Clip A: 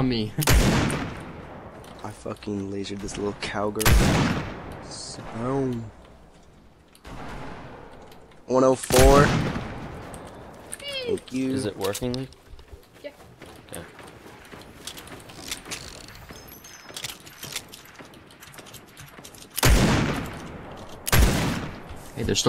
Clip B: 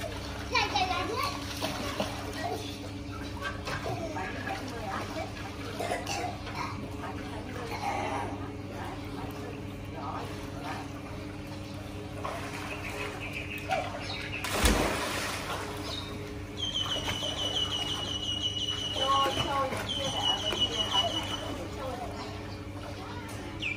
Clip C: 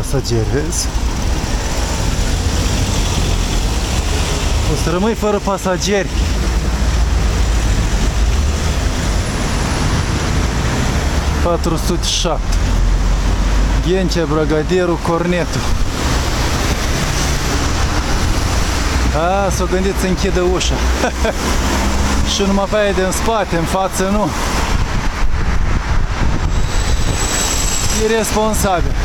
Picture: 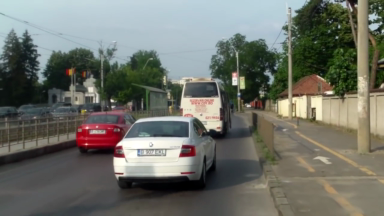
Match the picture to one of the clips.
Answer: C